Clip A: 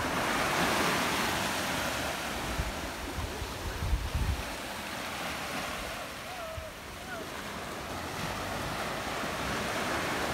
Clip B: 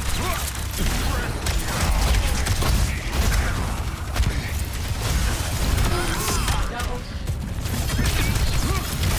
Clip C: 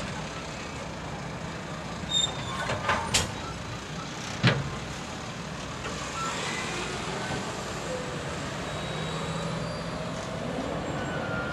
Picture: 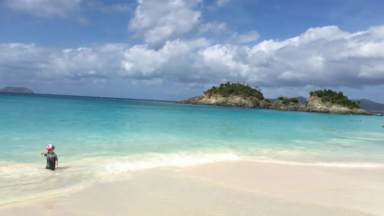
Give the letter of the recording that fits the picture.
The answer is A